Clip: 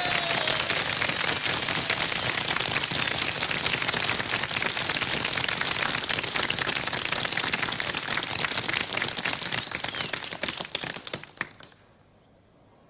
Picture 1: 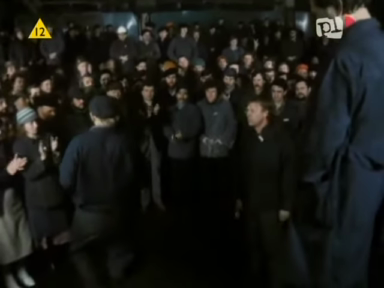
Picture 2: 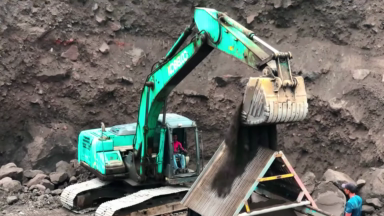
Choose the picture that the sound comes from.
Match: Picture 1